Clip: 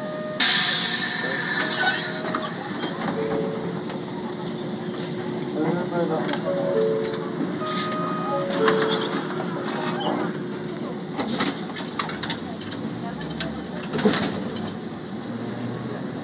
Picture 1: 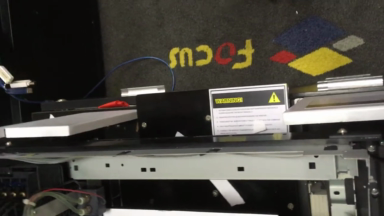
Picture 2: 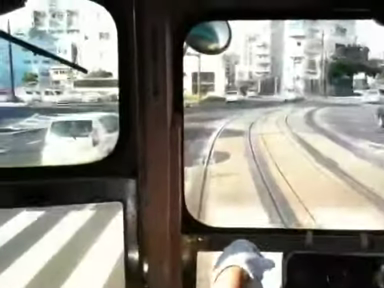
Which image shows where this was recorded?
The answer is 2